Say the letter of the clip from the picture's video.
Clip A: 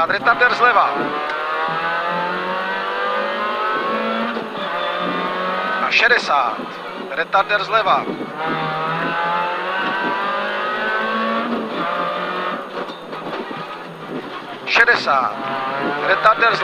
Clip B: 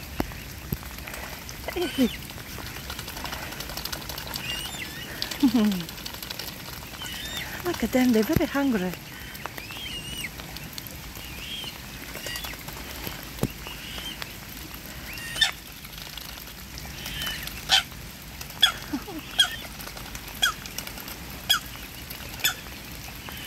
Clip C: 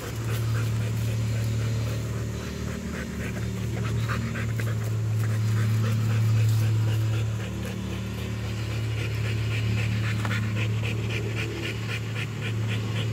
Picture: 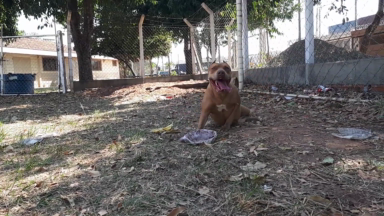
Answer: C